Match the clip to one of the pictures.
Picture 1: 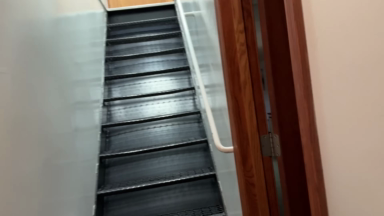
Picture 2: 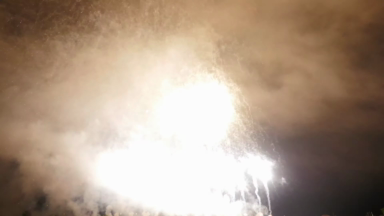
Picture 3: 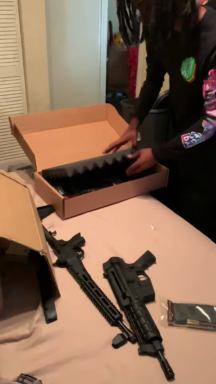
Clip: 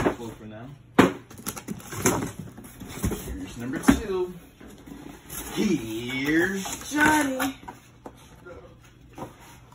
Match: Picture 3